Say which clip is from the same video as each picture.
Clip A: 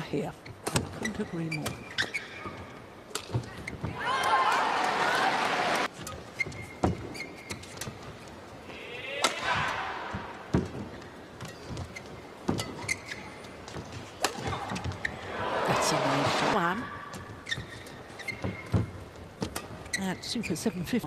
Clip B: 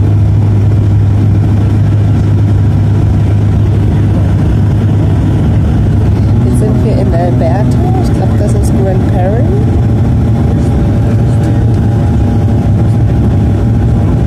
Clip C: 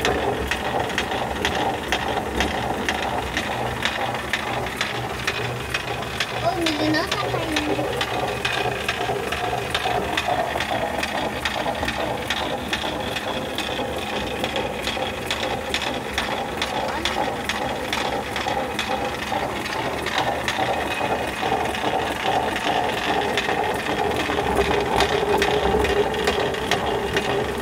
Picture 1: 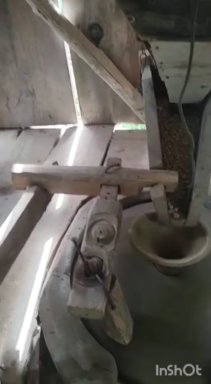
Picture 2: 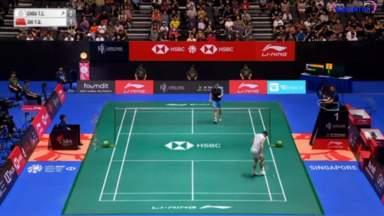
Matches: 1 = C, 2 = A